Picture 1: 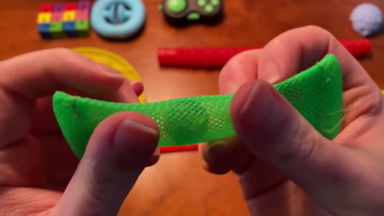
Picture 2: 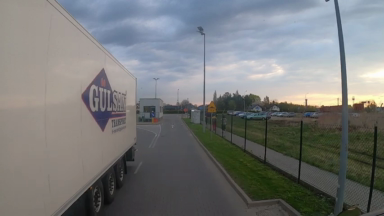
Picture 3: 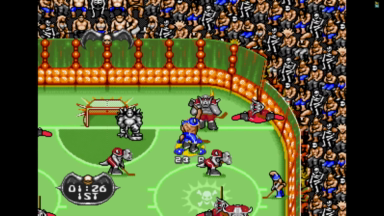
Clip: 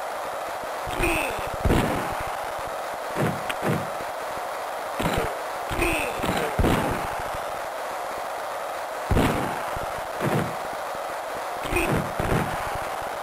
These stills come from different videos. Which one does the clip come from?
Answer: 3